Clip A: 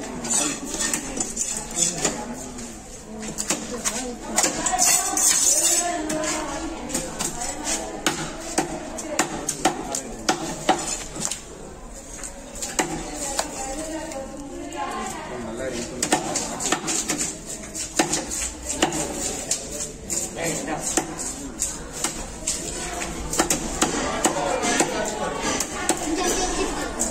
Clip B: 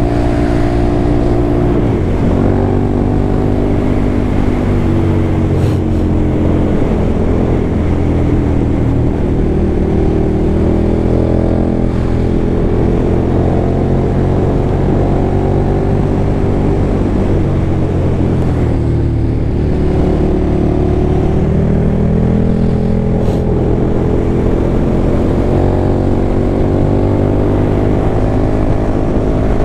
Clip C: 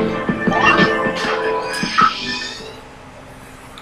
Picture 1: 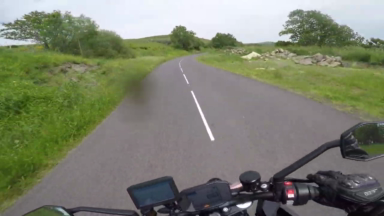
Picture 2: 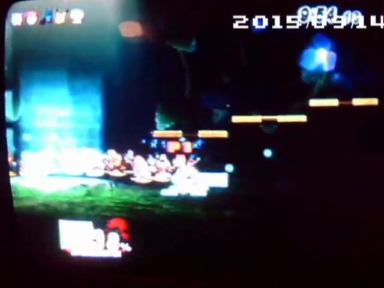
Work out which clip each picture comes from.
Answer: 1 B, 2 C